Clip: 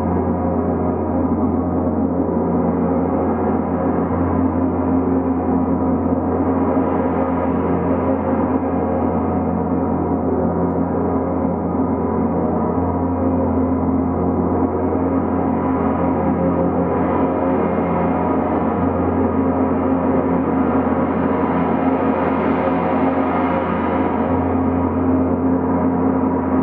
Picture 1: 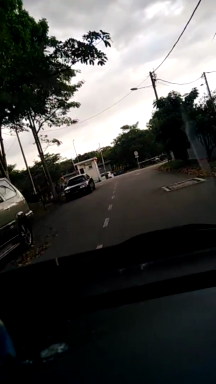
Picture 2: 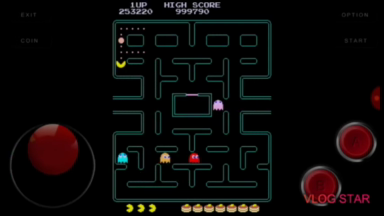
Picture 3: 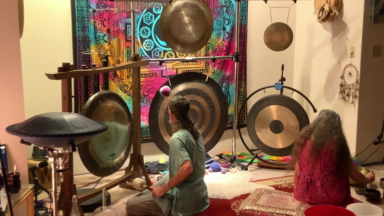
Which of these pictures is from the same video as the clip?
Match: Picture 3